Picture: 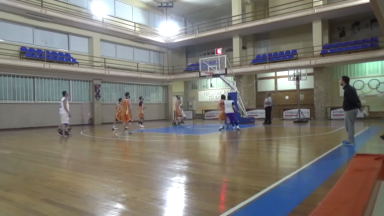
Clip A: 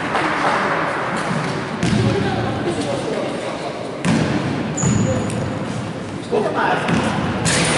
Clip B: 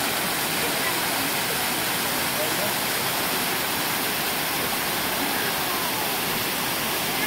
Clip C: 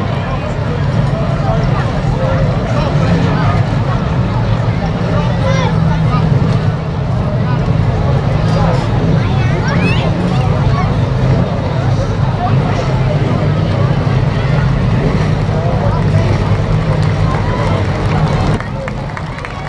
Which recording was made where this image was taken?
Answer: A